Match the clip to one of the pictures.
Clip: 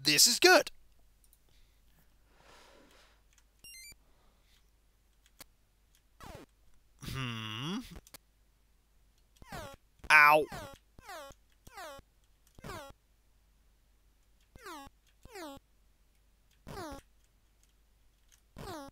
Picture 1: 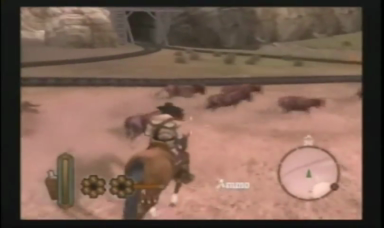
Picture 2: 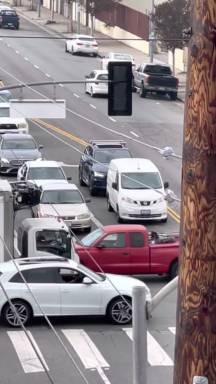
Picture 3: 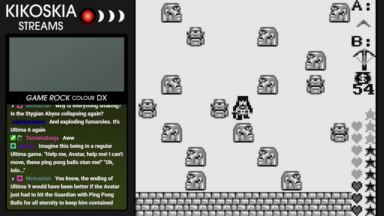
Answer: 3